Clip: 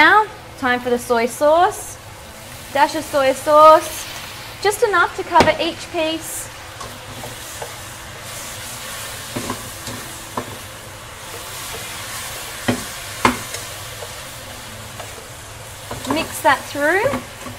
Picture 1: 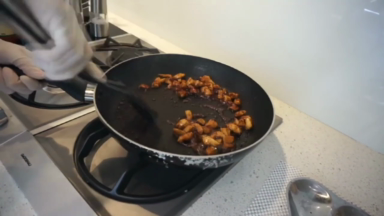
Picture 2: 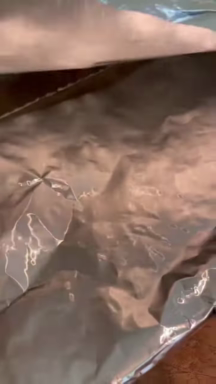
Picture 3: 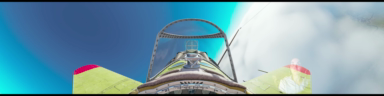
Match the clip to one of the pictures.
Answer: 1